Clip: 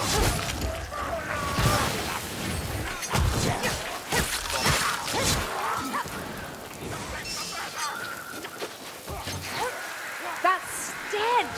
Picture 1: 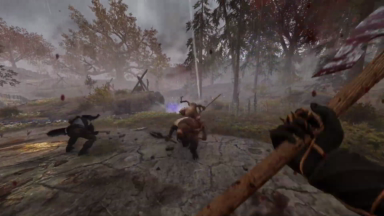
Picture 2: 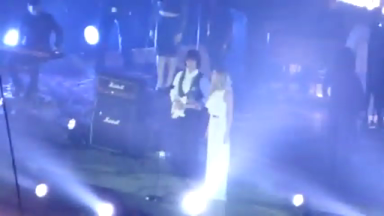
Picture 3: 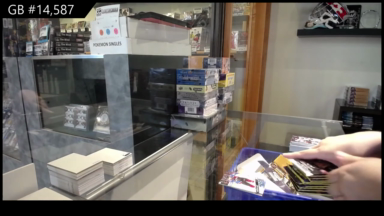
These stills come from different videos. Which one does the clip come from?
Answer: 1